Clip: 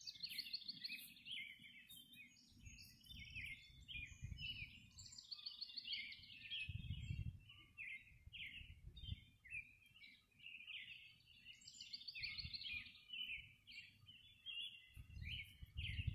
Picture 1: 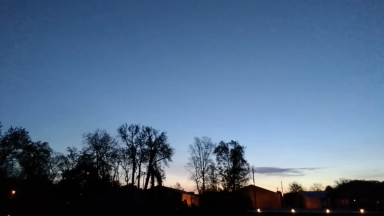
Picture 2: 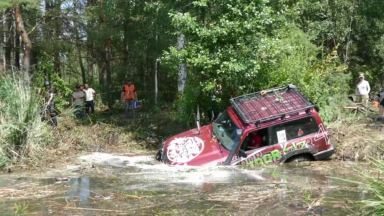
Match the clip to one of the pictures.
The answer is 1